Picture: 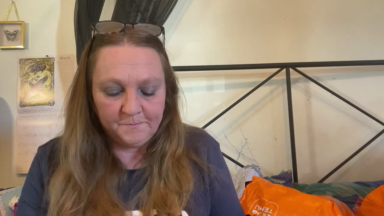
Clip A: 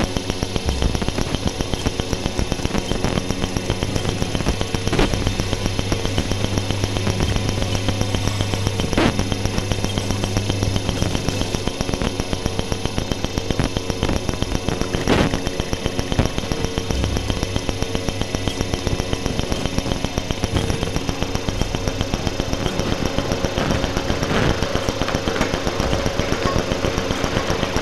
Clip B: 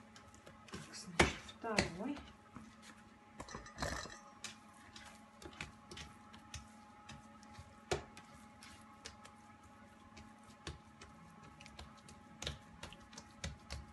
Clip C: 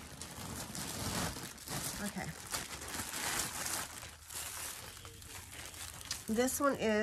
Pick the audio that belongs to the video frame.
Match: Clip C